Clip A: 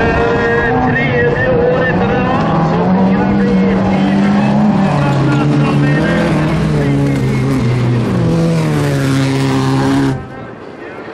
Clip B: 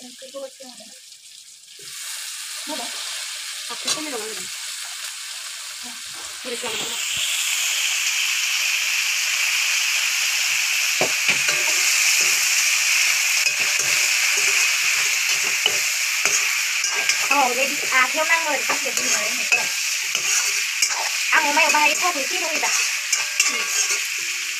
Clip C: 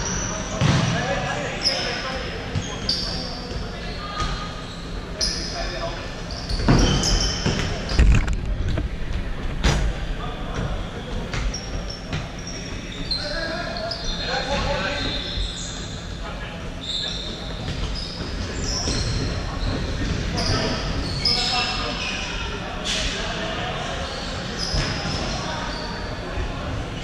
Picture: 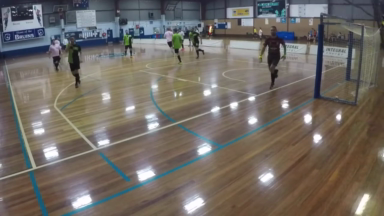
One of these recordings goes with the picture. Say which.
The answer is C